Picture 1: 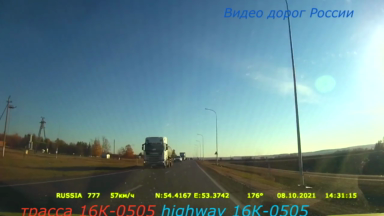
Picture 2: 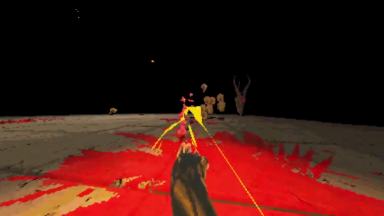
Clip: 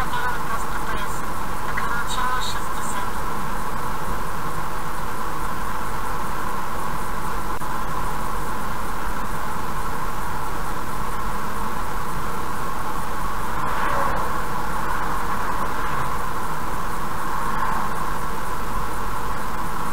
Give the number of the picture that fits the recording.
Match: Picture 1